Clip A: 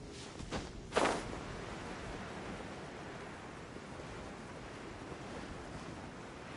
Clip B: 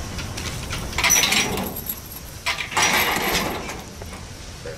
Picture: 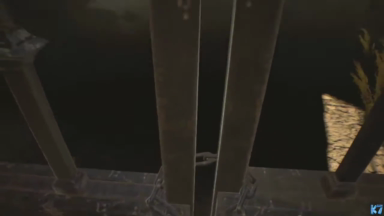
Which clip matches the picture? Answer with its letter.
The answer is B